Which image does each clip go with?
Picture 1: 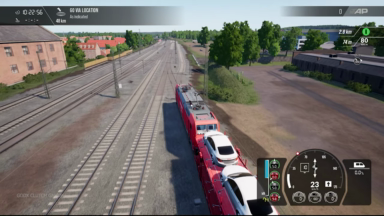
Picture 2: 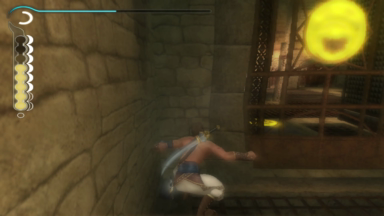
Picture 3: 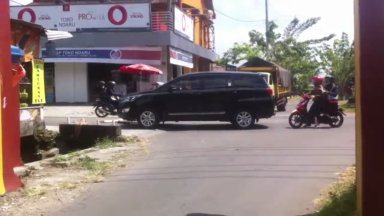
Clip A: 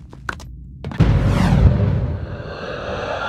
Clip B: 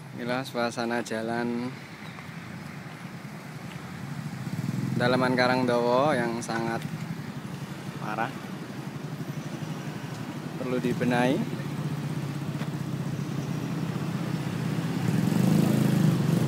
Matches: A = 2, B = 3